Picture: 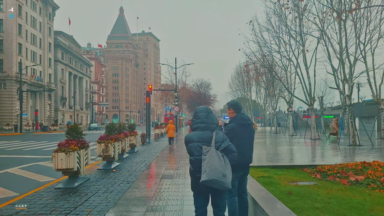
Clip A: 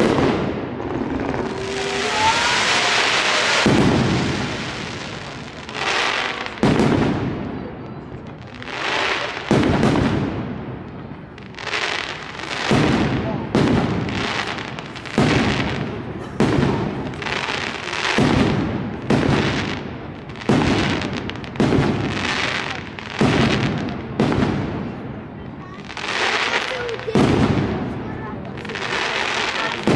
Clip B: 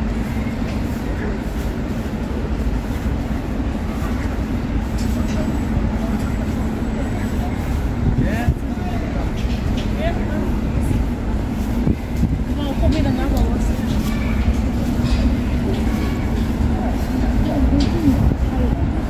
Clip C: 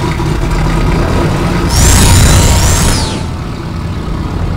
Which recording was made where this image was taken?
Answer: B